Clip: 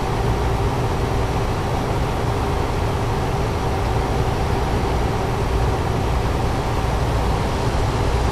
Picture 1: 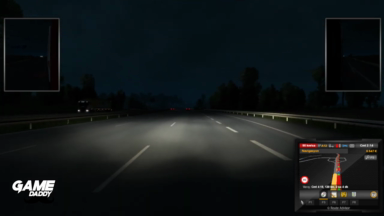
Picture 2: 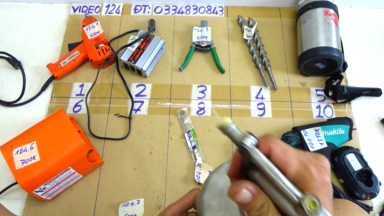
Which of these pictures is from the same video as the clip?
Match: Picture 1